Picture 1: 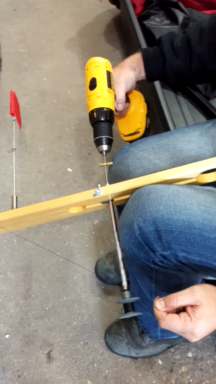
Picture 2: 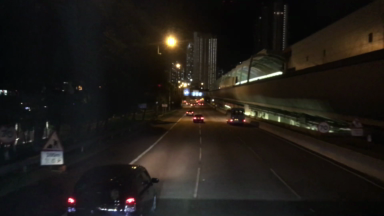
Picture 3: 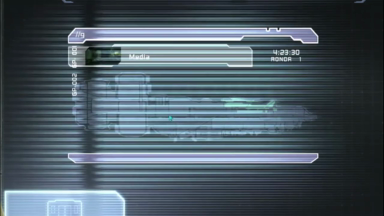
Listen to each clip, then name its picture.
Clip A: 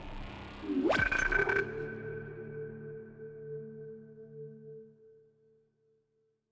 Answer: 3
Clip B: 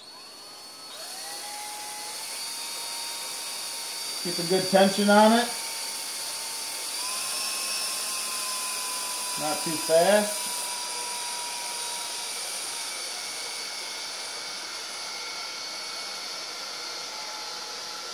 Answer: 1